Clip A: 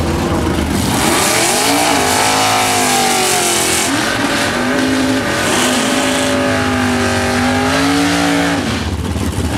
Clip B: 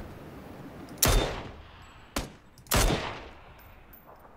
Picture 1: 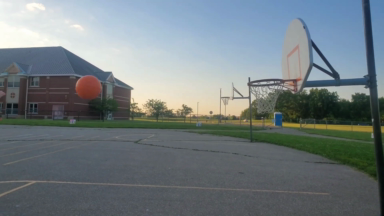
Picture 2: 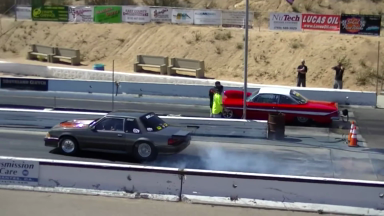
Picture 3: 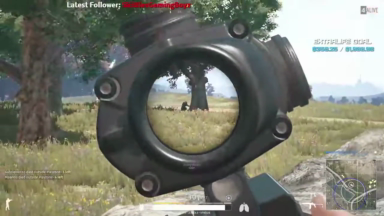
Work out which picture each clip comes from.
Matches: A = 2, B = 3